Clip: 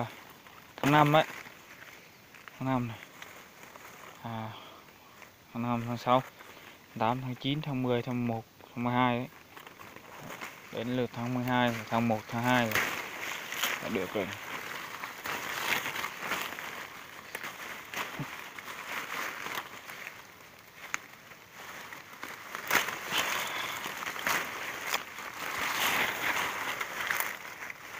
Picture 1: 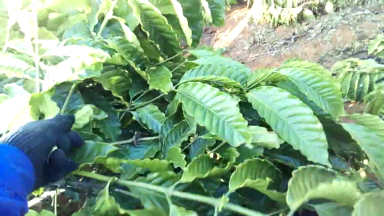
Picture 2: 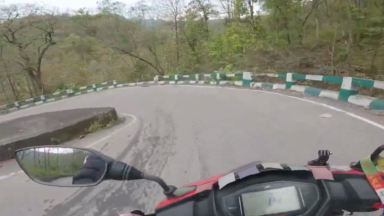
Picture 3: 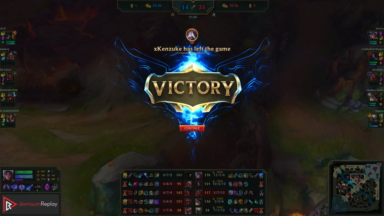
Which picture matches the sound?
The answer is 1